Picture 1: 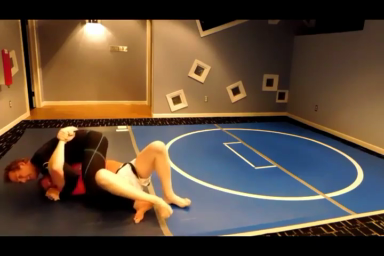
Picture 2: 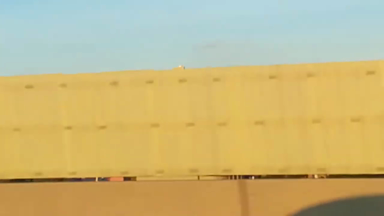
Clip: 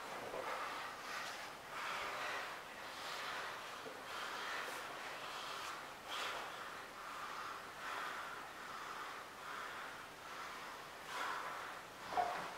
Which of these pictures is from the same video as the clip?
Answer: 1